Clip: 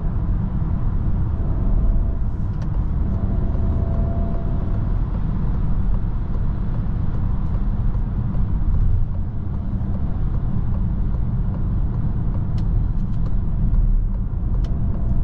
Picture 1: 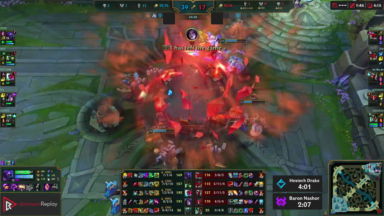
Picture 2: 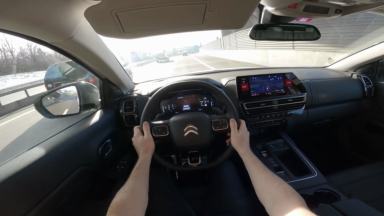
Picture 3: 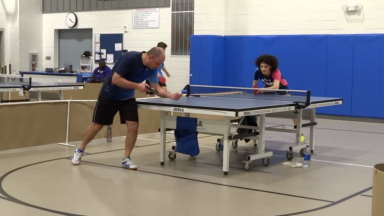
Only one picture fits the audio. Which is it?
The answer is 2